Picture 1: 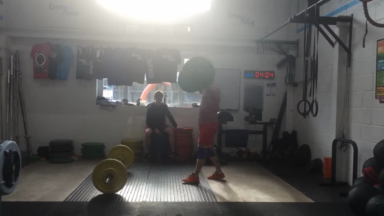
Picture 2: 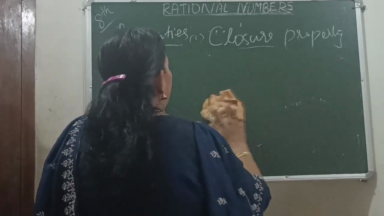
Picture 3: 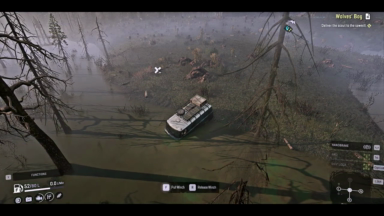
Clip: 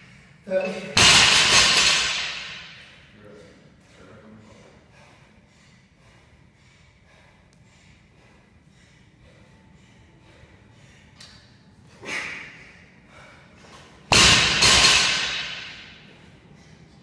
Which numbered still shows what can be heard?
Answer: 1